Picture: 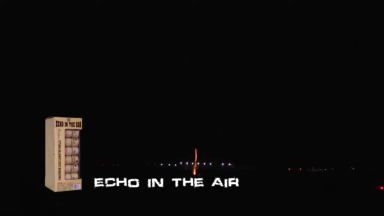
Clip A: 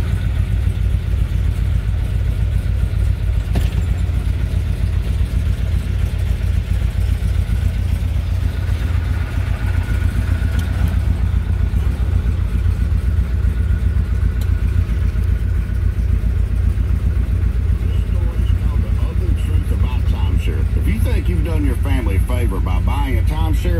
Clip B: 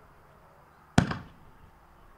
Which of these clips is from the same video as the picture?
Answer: B